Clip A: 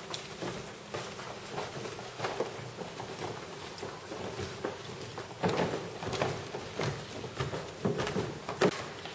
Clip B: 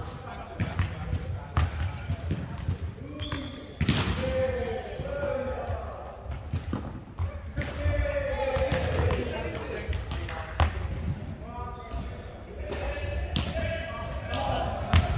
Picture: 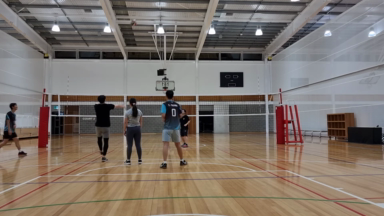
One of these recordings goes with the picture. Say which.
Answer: B